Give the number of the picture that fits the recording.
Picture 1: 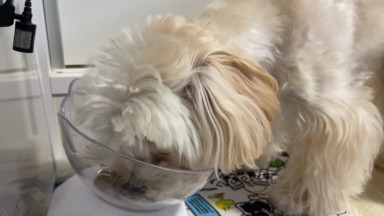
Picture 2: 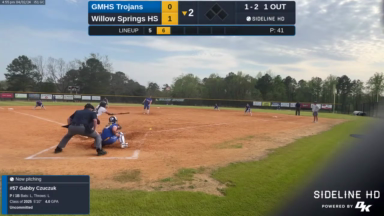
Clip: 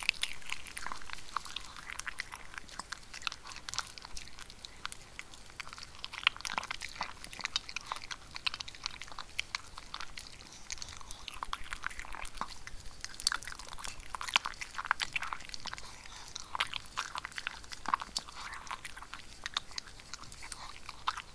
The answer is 1